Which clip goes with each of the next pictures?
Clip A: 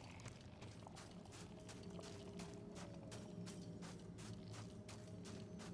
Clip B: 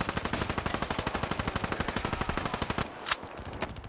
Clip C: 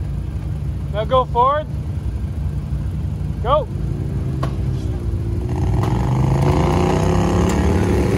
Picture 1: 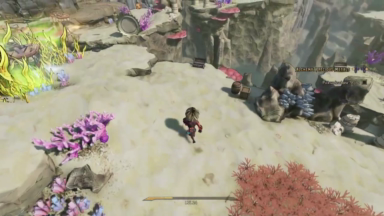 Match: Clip A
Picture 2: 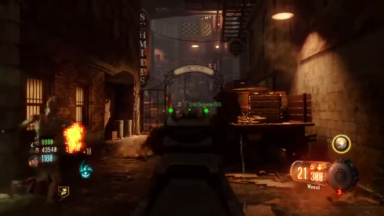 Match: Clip B